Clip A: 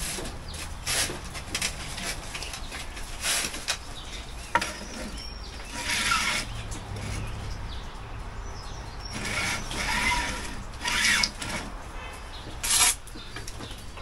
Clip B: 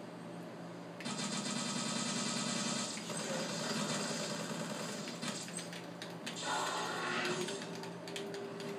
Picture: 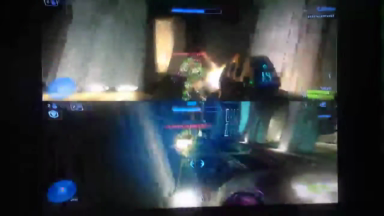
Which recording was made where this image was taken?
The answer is B